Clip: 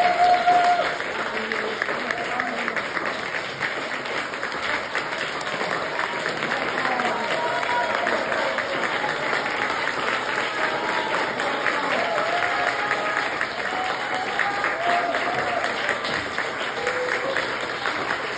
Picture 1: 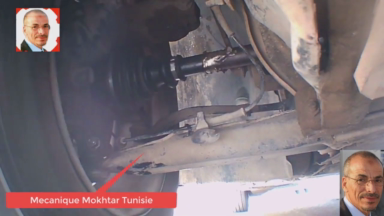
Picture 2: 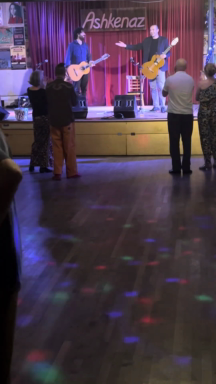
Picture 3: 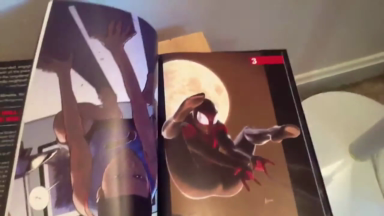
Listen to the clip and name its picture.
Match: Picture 2